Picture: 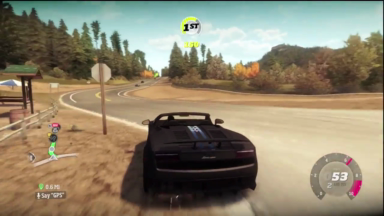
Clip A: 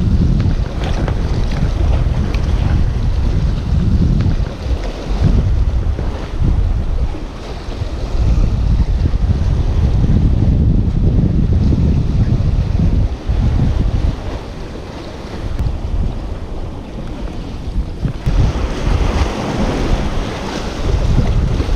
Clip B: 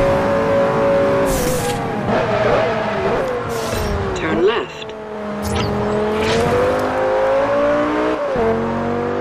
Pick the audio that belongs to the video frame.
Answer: B